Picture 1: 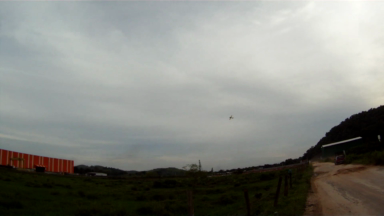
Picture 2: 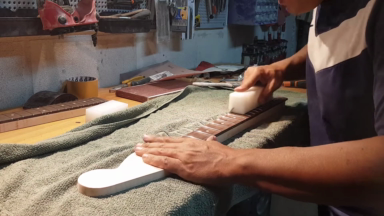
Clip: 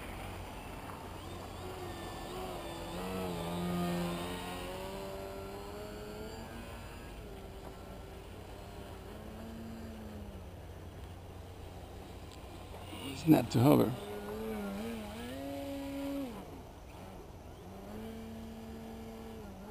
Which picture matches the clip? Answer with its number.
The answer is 1